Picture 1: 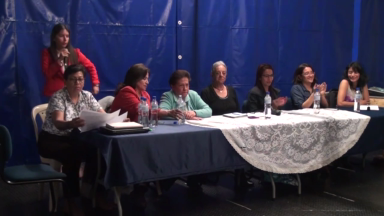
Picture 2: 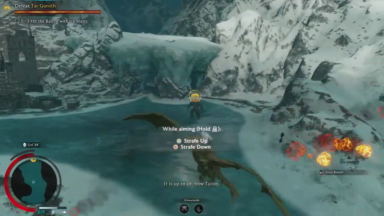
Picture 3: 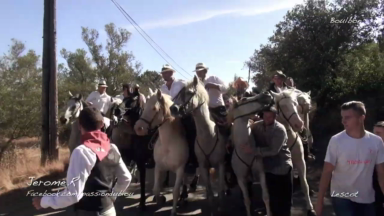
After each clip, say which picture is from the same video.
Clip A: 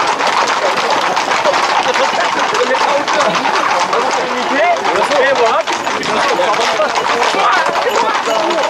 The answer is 3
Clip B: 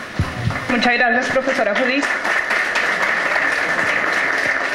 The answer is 1